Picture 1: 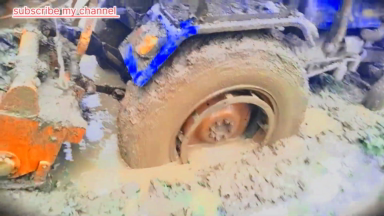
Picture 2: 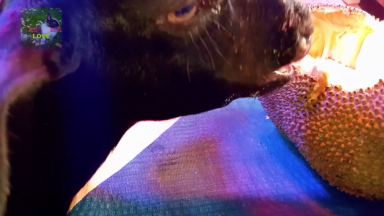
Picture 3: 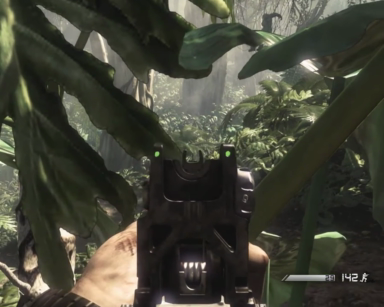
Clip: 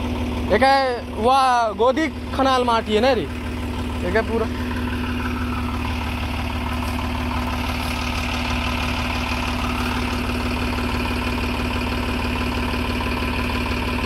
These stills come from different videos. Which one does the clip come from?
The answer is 1